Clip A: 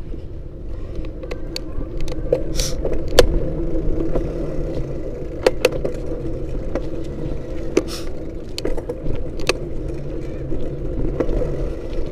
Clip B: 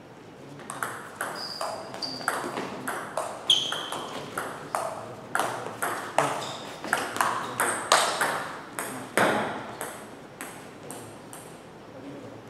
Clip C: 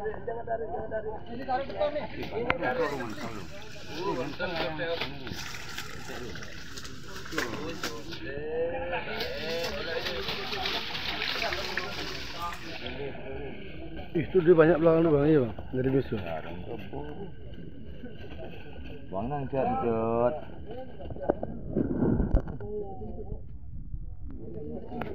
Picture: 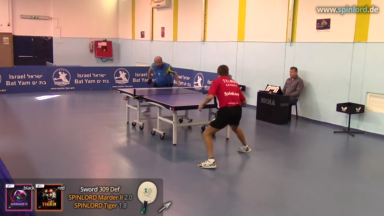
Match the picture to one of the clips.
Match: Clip B